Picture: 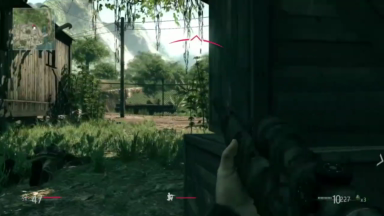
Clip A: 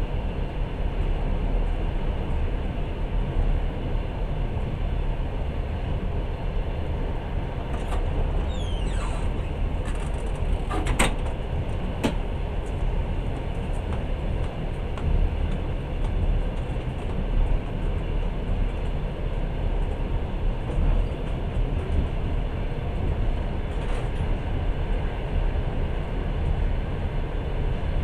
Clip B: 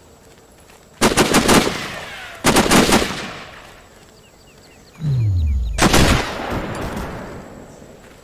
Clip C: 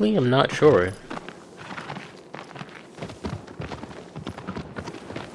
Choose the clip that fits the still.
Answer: B